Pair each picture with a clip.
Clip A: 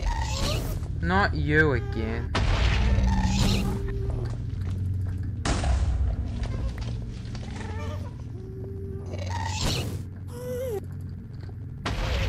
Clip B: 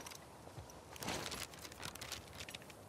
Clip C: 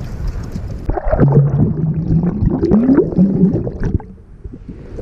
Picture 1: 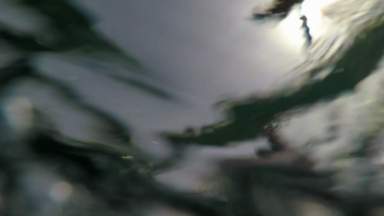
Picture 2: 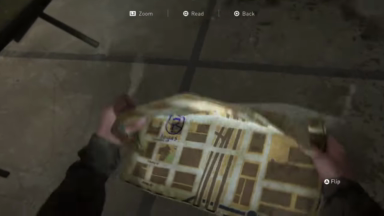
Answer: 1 C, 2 B